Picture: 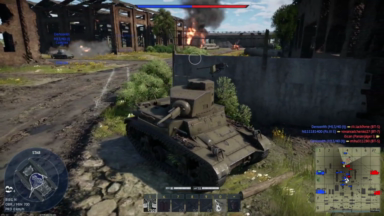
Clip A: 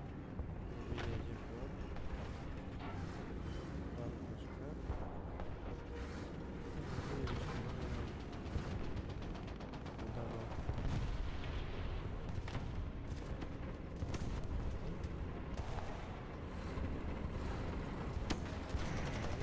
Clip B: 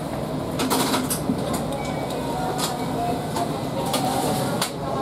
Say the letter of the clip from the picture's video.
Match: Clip A